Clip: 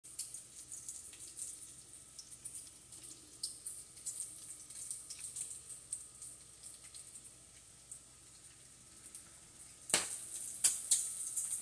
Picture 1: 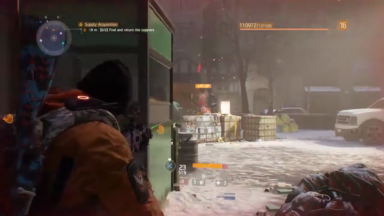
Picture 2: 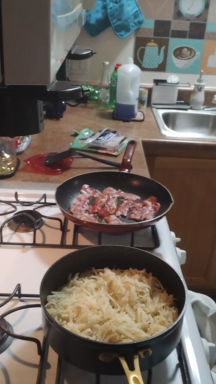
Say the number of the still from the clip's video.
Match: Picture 2